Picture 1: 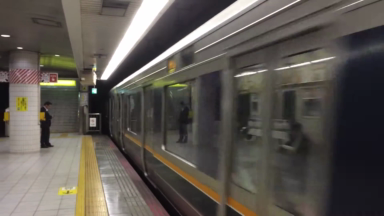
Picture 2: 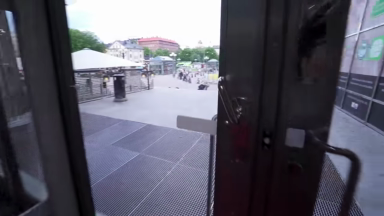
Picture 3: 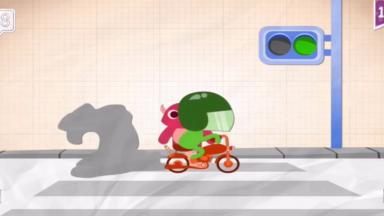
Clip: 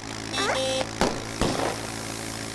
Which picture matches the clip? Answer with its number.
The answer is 3